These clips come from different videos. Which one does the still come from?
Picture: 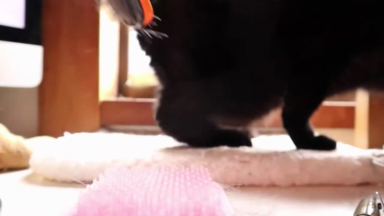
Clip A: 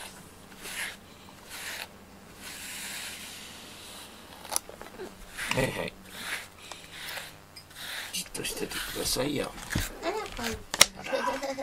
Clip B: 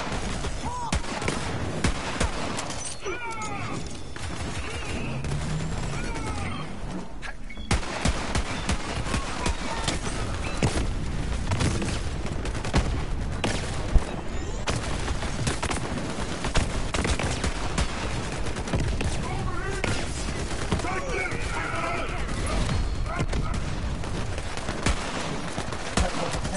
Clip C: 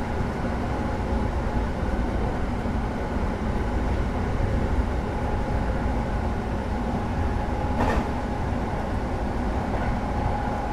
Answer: A